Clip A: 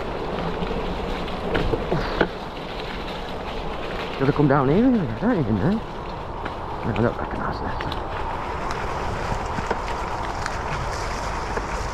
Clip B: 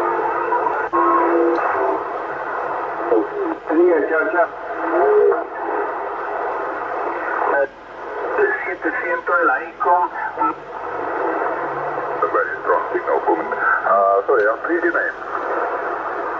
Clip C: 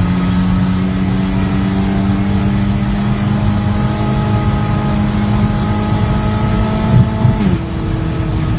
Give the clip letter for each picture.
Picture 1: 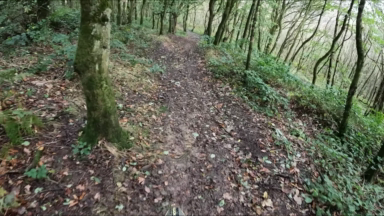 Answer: A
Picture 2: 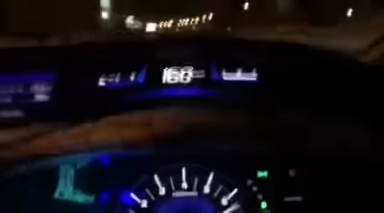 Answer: C